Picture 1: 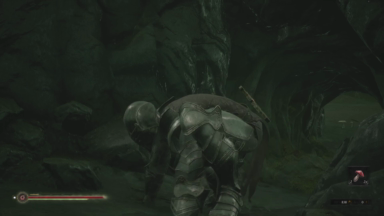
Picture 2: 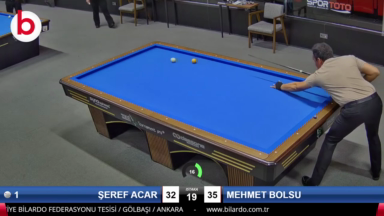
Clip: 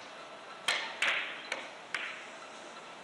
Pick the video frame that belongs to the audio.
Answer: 2